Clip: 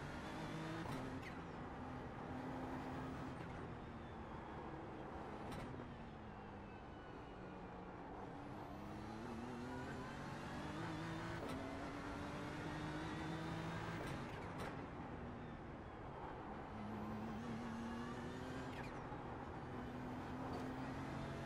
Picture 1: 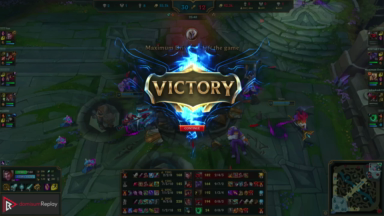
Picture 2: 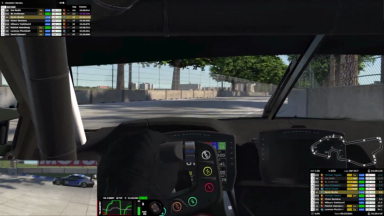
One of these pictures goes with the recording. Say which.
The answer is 2